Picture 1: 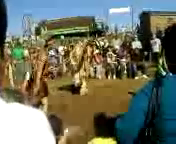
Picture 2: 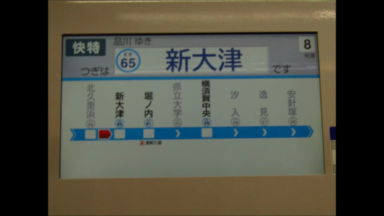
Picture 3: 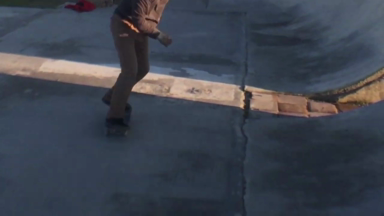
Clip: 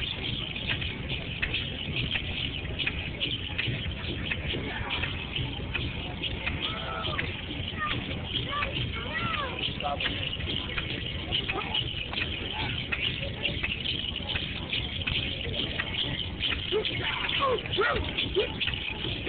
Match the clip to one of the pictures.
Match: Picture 1